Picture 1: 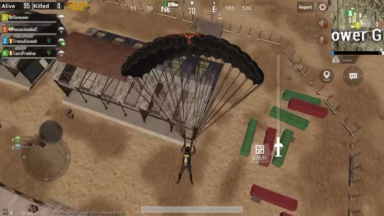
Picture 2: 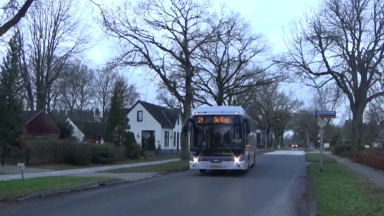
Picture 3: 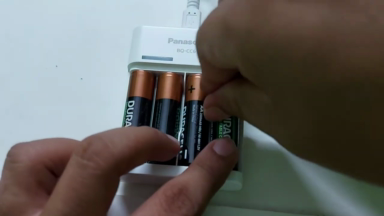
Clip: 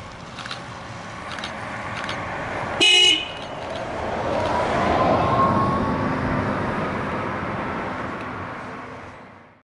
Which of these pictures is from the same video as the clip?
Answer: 2